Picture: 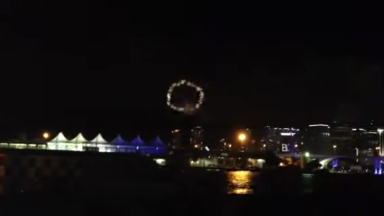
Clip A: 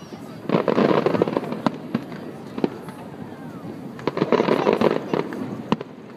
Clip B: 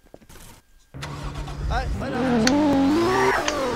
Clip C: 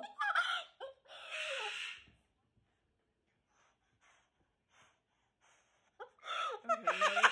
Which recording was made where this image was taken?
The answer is A